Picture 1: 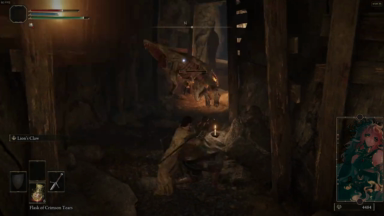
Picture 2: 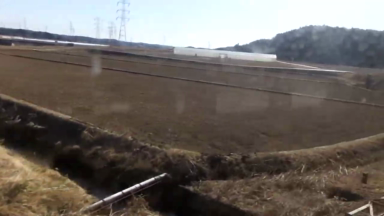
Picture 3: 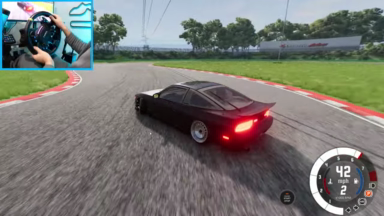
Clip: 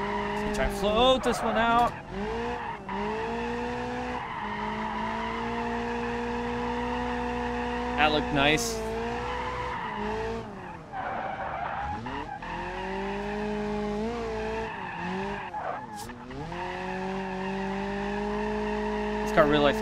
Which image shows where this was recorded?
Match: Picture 3